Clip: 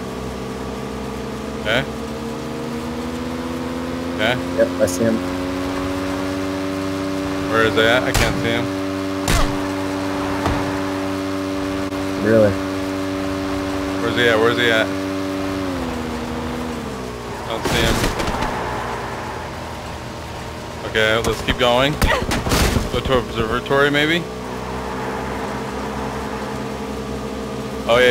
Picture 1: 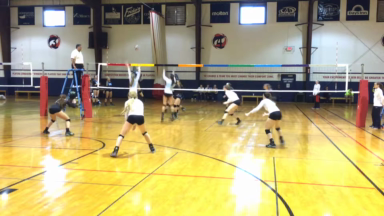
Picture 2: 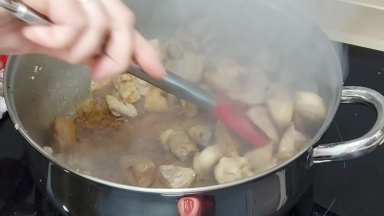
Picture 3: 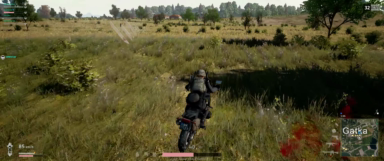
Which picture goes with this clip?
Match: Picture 3